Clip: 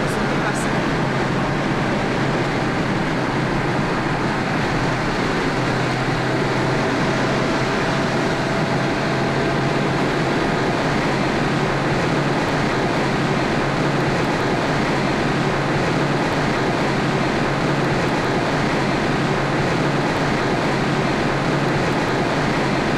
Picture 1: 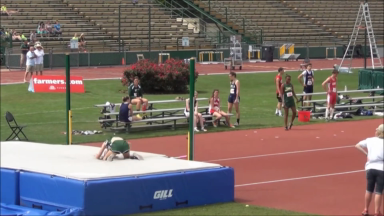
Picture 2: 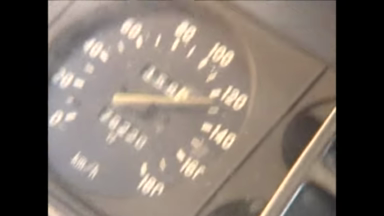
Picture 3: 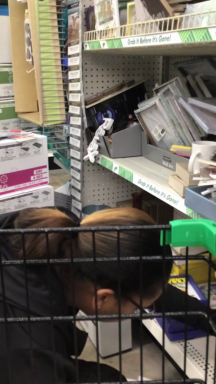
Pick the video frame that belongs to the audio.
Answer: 2